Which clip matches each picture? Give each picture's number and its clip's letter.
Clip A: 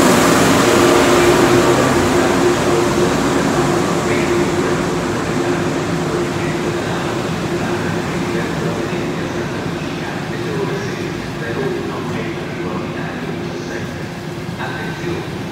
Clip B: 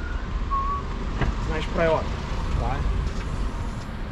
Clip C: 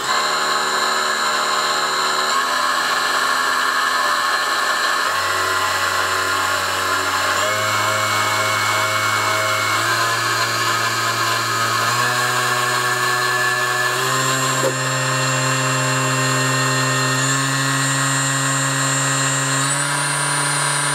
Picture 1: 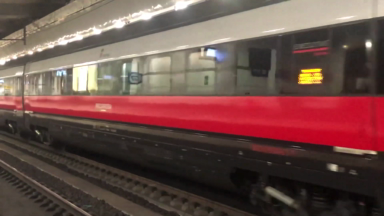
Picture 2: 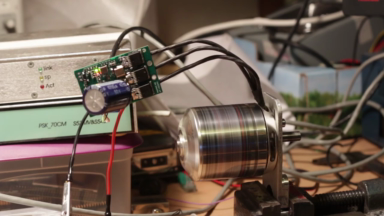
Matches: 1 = A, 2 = C